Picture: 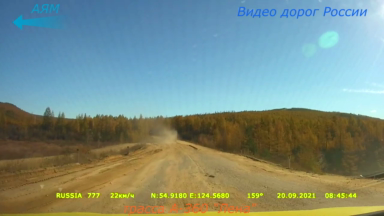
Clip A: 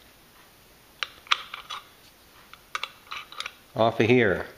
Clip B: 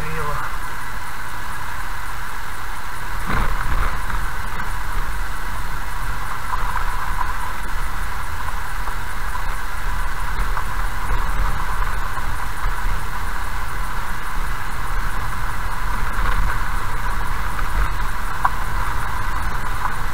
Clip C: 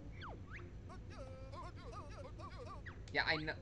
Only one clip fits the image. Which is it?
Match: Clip B